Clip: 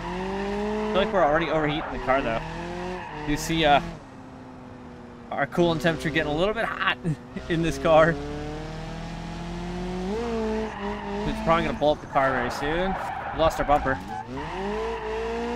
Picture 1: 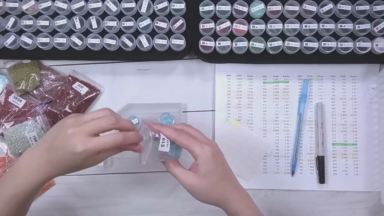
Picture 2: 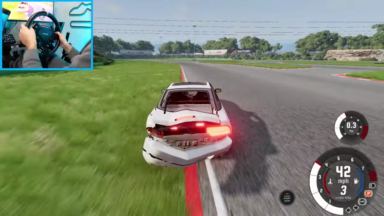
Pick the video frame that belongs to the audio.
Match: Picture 2